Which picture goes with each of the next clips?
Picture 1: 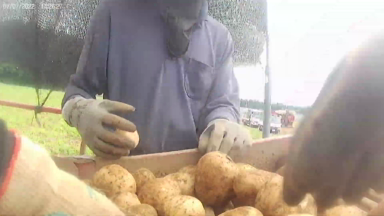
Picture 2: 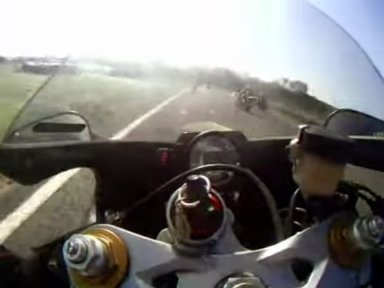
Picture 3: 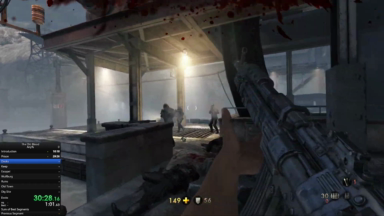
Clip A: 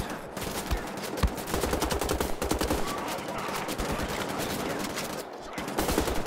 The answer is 3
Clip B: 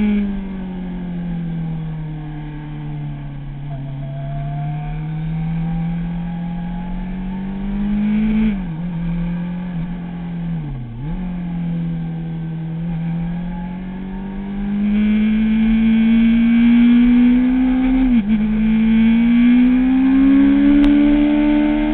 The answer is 2